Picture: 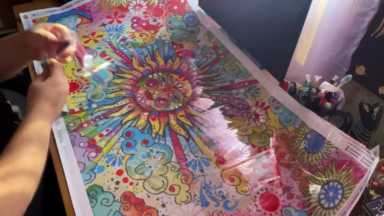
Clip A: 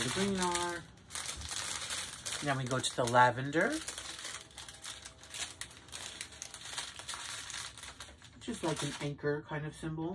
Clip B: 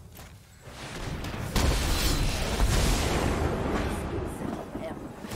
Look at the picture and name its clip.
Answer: A